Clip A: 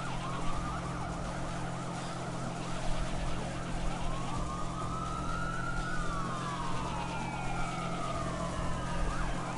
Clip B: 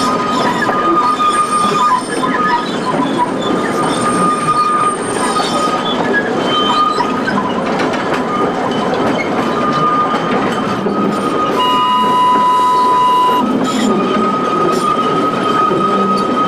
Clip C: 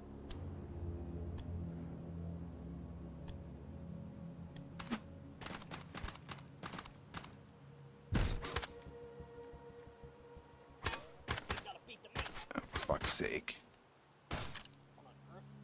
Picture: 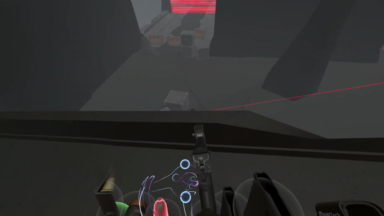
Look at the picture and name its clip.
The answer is C